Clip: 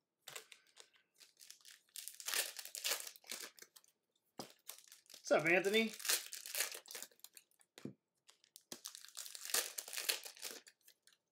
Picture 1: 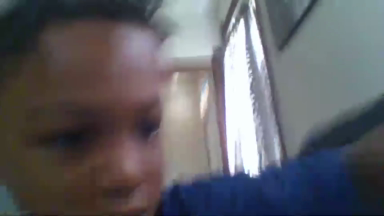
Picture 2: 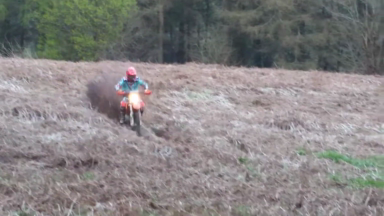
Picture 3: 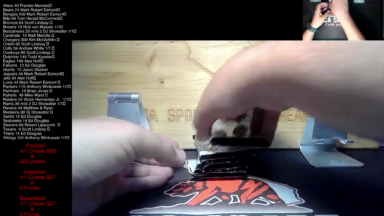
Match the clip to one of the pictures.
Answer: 3